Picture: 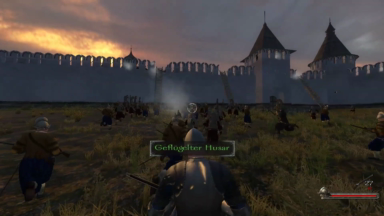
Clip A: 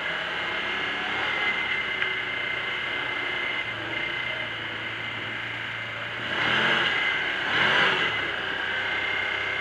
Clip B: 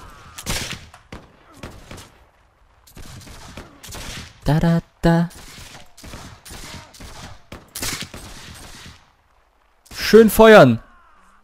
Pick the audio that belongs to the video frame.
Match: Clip B